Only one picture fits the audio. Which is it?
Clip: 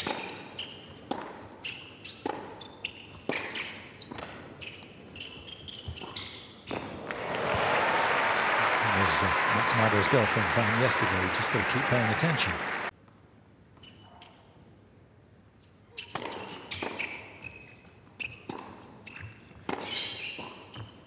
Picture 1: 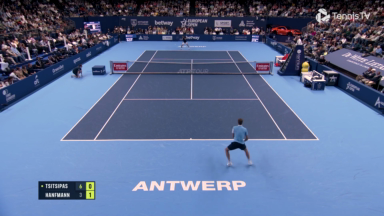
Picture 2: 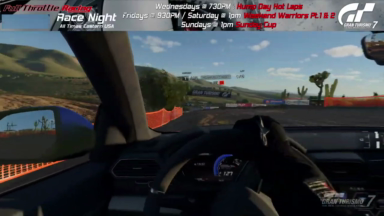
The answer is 1